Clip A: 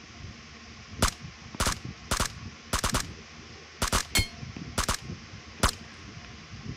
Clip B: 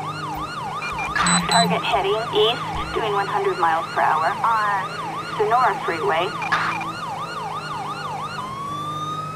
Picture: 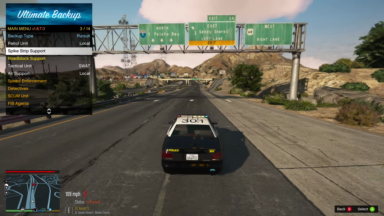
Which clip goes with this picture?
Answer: B